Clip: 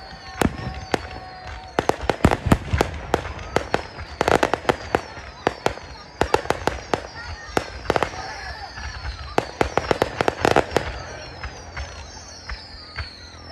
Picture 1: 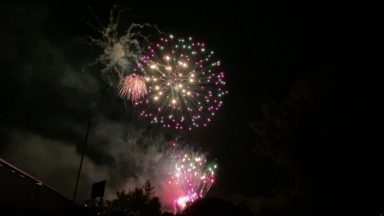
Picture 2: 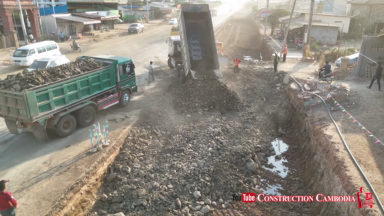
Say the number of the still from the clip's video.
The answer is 1